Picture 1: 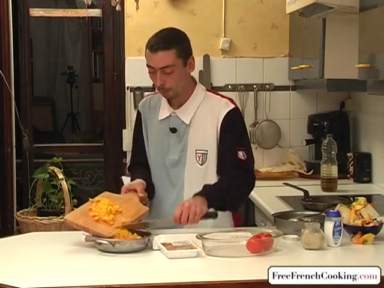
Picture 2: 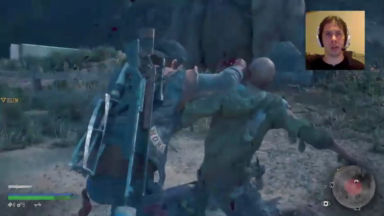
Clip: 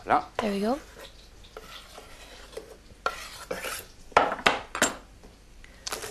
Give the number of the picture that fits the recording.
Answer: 1